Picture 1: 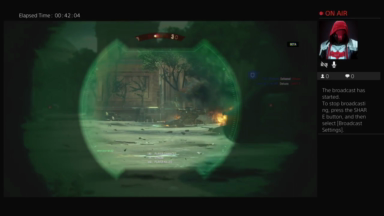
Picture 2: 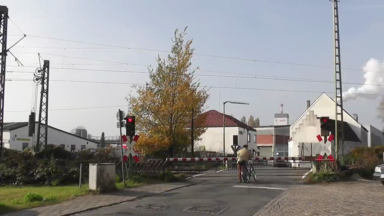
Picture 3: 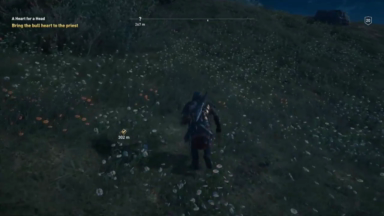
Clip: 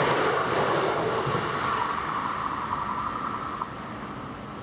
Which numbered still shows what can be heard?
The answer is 2